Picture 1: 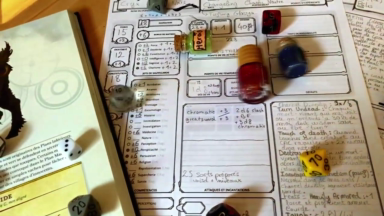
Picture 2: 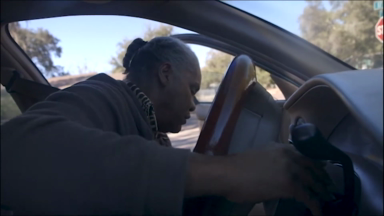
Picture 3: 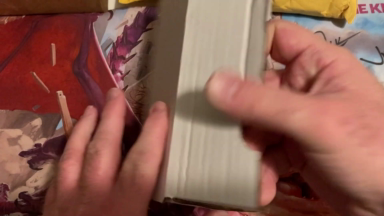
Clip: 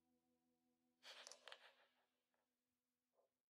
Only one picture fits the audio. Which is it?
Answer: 1